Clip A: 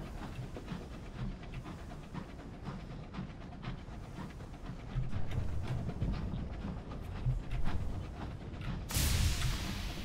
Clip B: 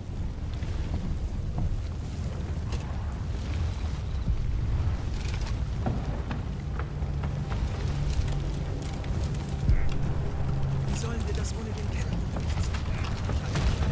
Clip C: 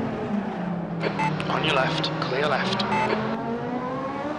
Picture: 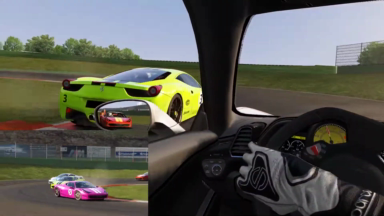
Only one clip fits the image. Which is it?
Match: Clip C